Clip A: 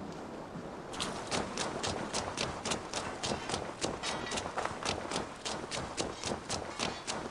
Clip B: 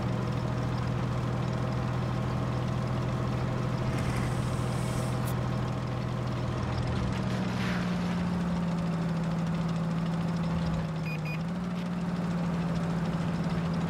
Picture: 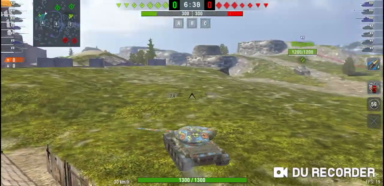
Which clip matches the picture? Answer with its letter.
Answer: B